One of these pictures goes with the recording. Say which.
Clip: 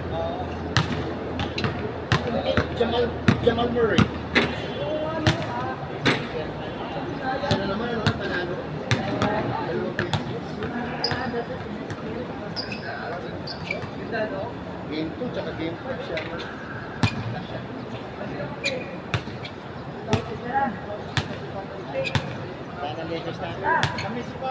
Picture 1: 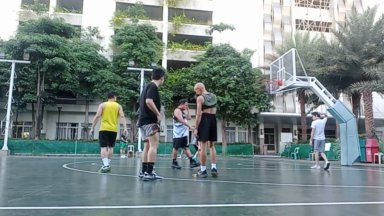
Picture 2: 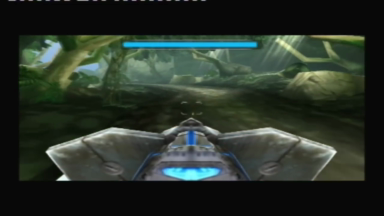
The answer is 1